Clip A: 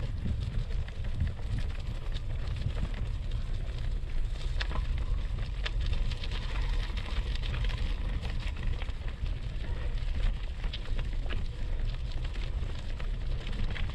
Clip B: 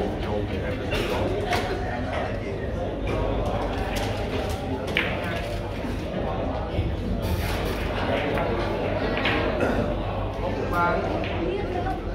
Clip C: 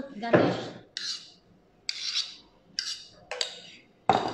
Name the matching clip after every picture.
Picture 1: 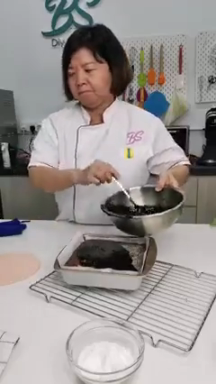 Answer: C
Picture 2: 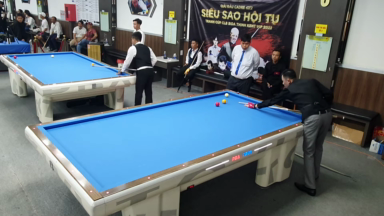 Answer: B